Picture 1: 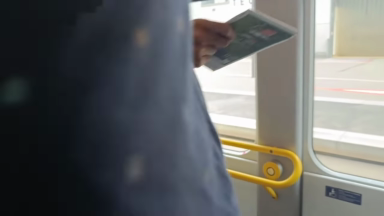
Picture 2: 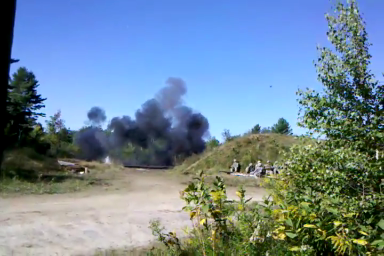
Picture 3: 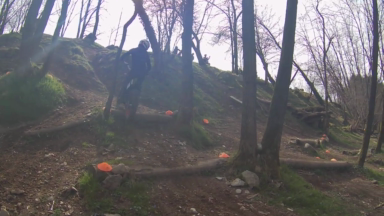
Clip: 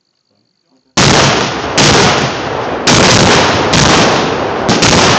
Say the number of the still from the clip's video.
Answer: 2